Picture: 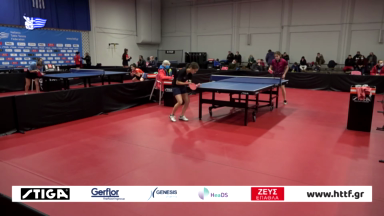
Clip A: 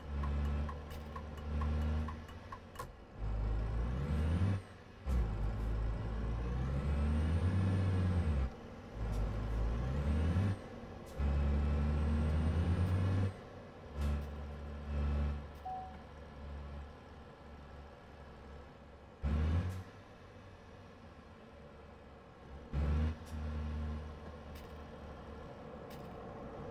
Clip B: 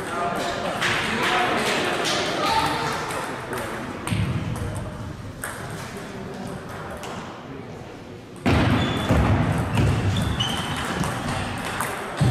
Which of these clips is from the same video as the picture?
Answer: B